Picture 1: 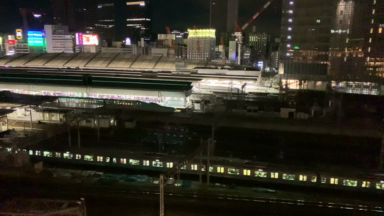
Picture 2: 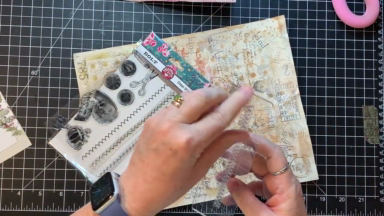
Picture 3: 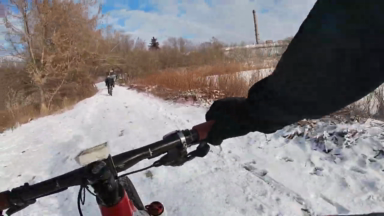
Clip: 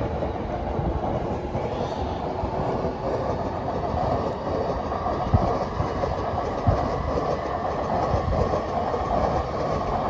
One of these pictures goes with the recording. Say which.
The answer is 1